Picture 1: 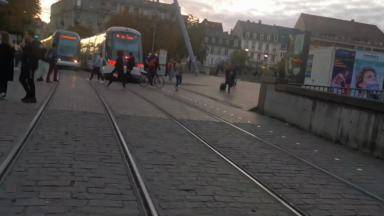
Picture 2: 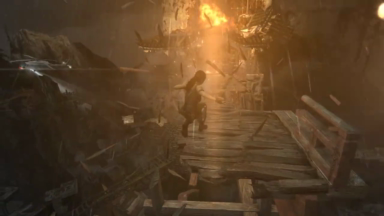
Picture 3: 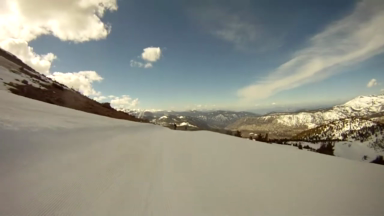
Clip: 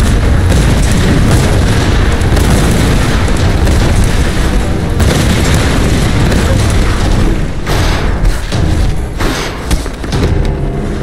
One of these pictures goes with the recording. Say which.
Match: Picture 2